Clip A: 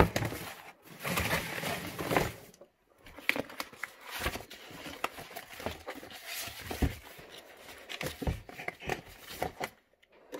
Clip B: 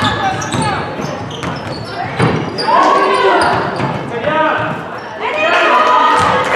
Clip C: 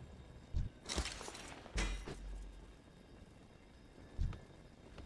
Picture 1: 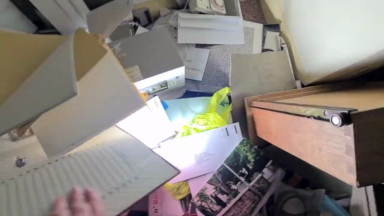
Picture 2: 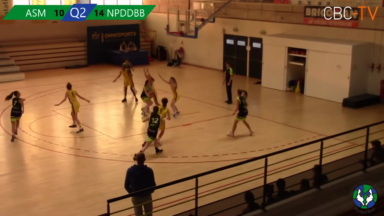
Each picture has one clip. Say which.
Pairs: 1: A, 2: B